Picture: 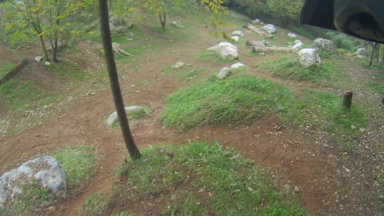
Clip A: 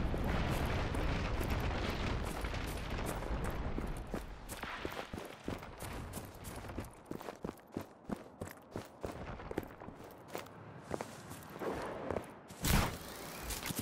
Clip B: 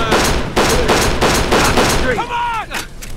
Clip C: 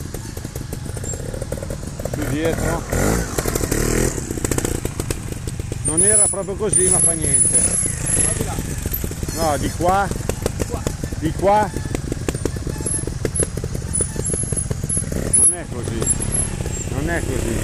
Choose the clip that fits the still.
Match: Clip C